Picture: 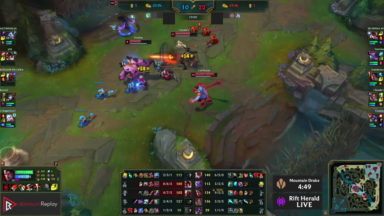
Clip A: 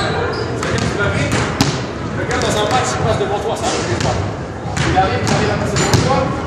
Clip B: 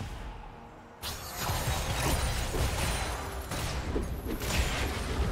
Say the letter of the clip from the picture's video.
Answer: B